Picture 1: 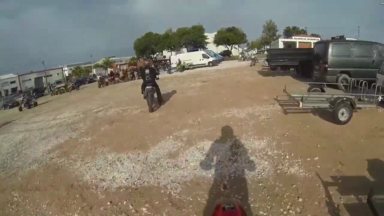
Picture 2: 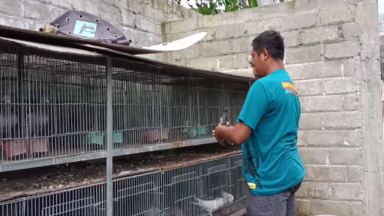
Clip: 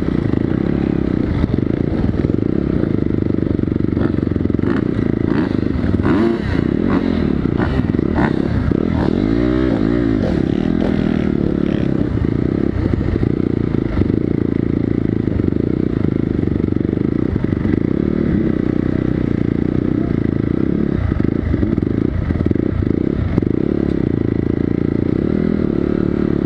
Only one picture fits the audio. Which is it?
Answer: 1